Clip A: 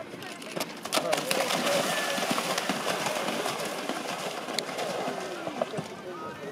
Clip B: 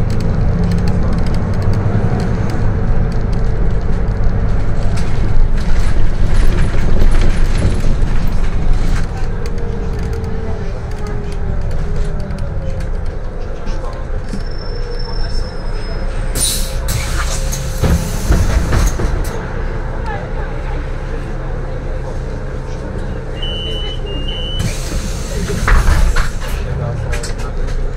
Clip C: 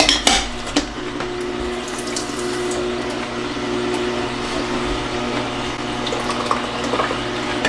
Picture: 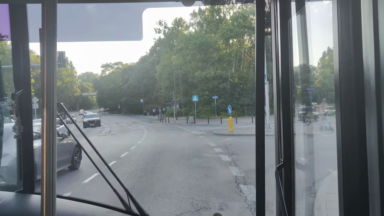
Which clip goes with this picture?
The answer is B